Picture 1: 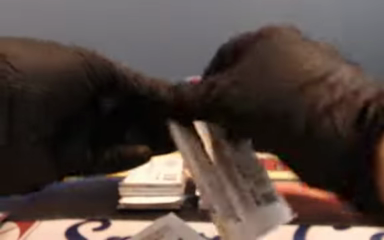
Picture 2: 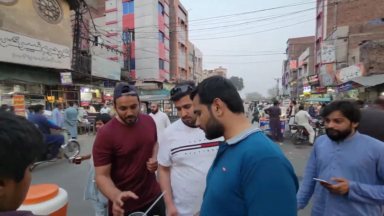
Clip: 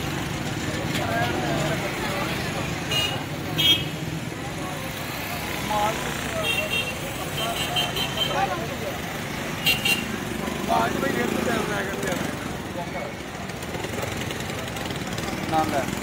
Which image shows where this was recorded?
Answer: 2